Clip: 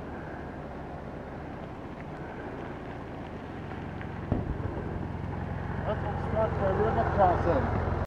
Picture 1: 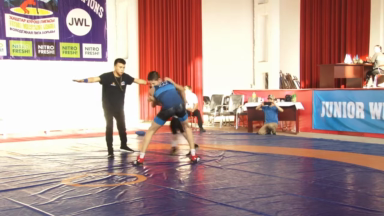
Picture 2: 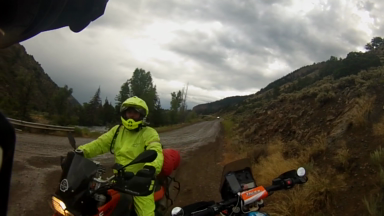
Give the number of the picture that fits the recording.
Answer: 2